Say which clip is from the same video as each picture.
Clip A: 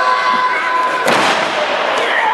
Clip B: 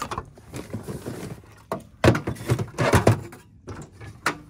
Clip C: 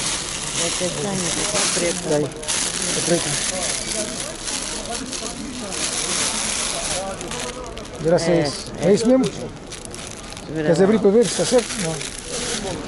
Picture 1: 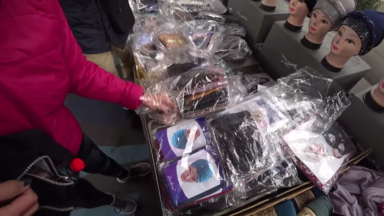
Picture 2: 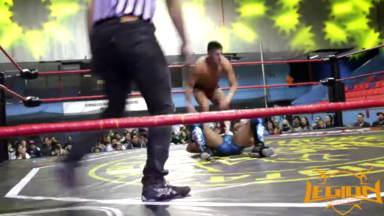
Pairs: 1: C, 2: A